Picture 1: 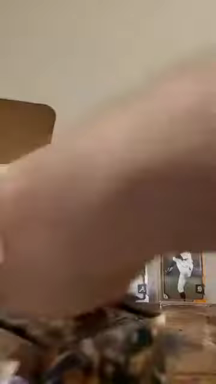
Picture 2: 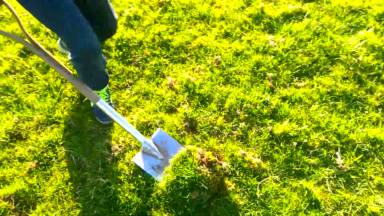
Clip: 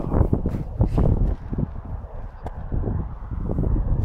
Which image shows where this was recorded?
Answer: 2